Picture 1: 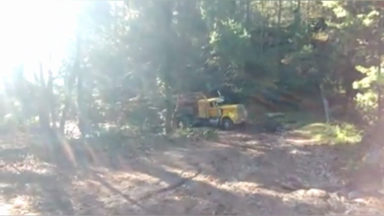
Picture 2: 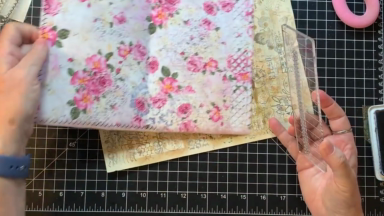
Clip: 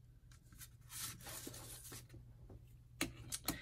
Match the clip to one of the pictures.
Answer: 2